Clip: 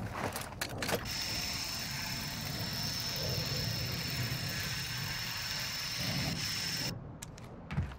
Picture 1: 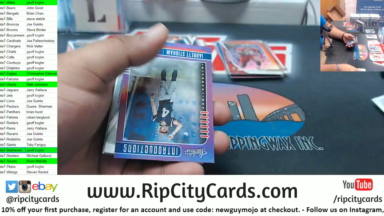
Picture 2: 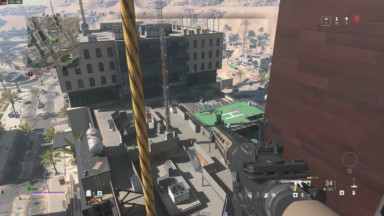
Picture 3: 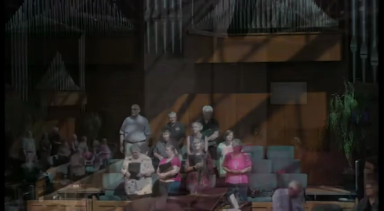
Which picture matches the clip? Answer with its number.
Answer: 2